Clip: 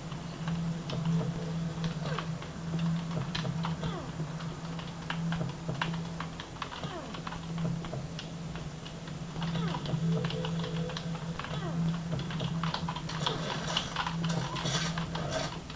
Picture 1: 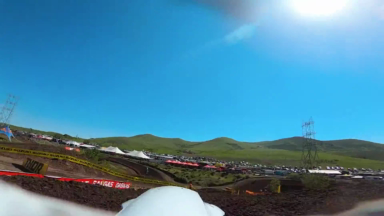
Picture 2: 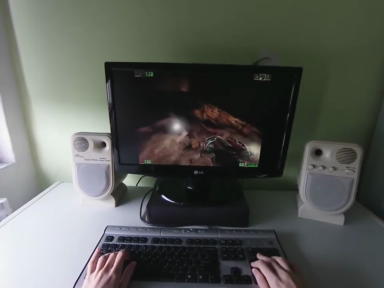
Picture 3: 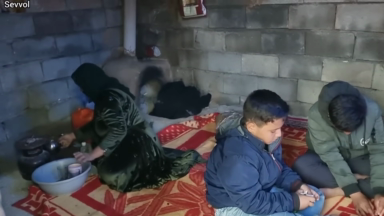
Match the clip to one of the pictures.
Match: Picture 2